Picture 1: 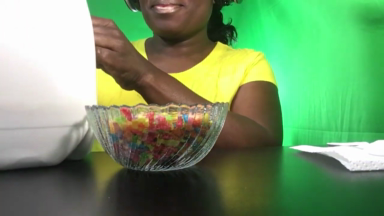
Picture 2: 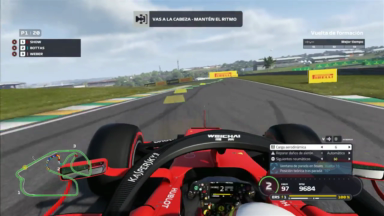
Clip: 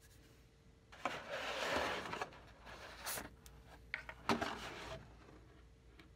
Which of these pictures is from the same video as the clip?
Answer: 1